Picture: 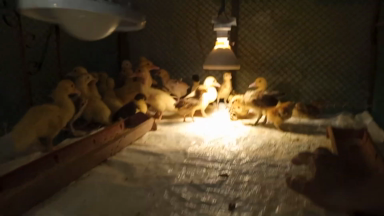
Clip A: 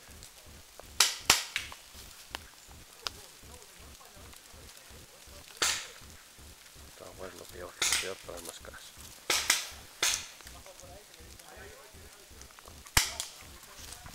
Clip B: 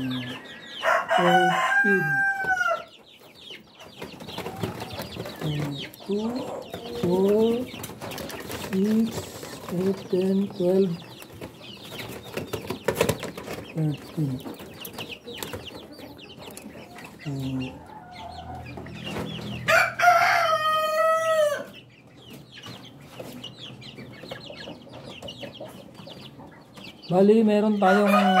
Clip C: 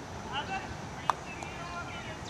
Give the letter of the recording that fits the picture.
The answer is B